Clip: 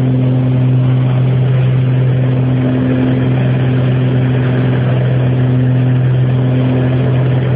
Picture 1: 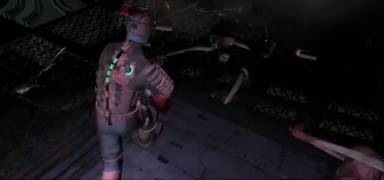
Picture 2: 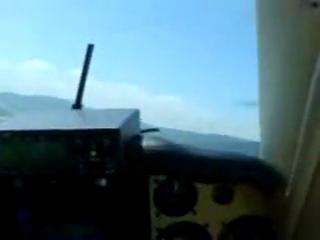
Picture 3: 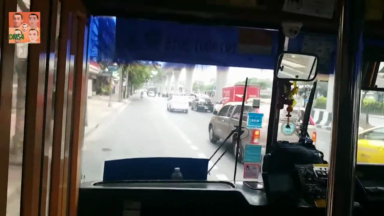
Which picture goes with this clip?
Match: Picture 2